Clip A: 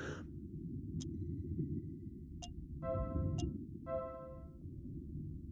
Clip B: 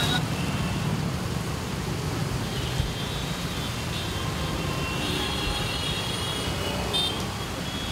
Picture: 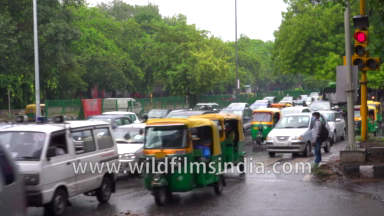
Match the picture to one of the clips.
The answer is B